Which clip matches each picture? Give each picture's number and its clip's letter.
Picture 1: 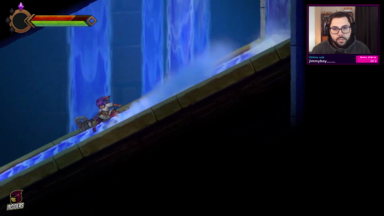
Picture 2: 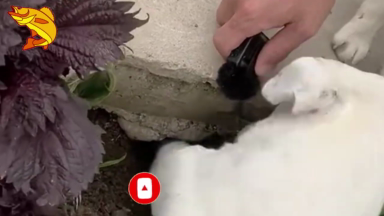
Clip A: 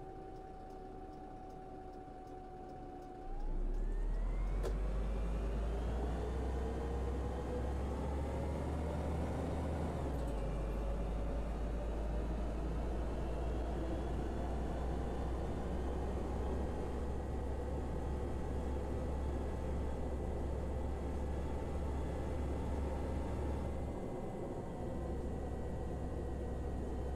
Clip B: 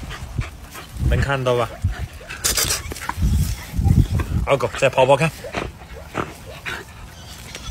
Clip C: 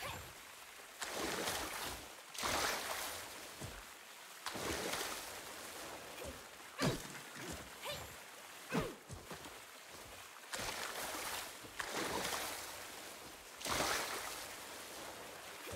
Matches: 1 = C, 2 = B